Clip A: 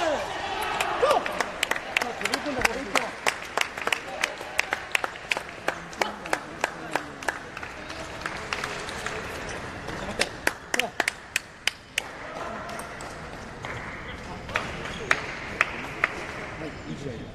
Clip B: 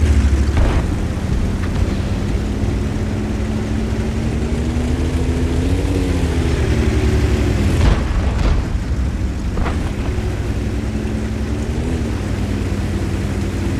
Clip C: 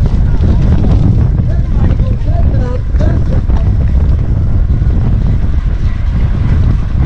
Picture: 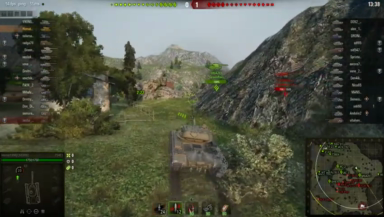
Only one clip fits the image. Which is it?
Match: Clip B